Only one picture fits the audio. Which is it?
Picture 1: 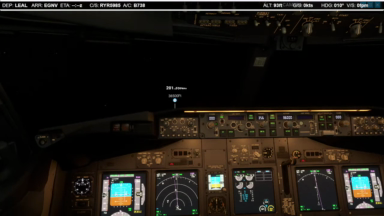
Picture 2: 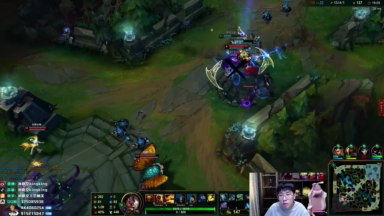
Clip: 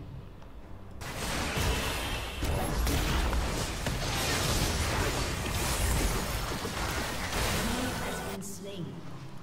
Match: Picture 2